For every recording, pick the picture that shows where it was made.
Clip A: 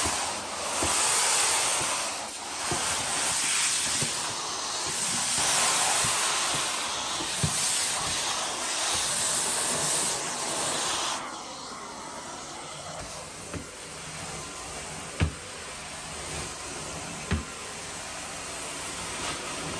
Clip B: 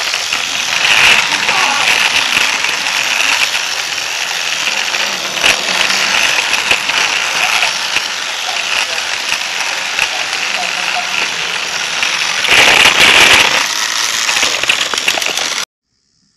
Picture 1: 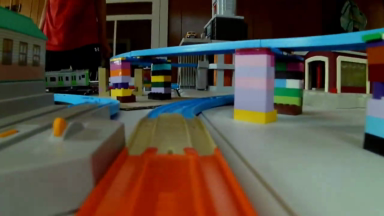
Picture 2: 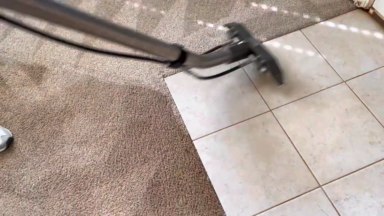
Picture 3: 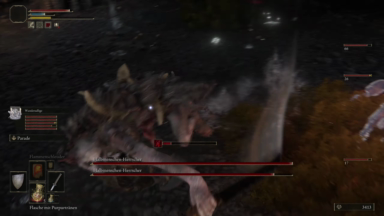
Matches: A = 2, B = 1